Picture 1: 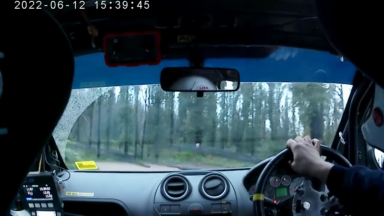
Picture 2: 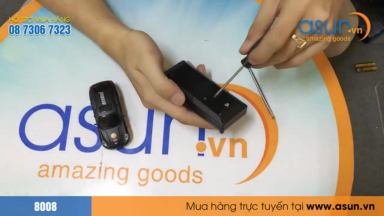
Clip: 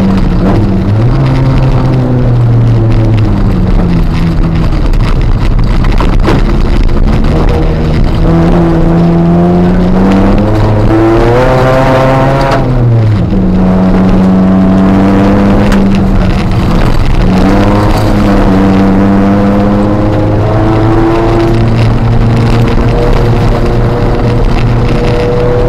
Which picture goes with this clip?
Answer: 1